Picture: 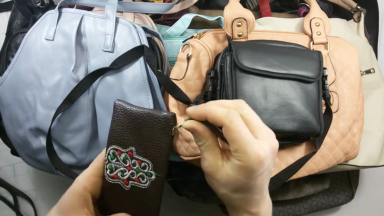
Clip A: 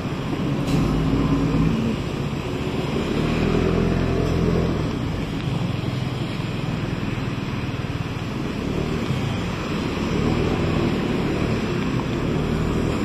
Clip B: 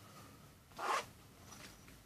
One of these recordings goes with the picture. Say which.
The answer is B